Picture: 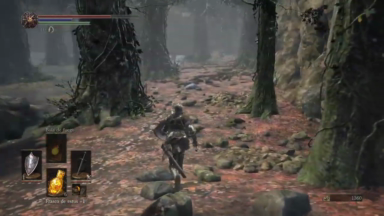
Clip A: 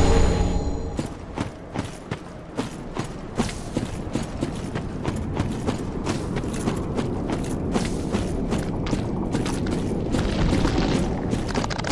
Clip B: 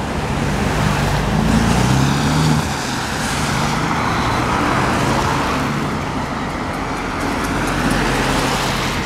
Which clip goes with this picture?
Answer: A